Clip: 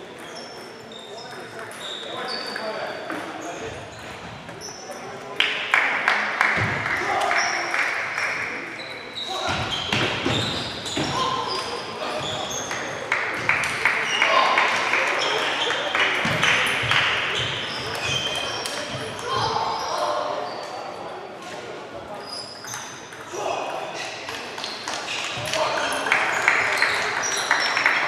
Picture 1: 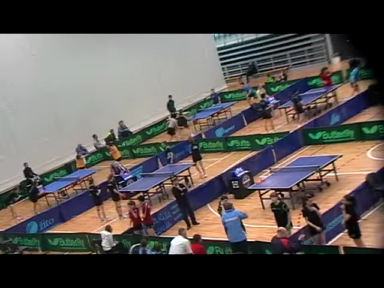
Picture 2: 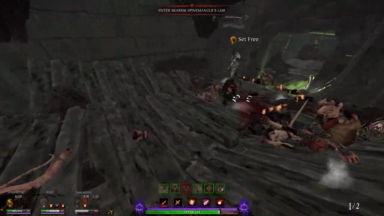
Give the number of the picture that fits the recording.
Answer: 1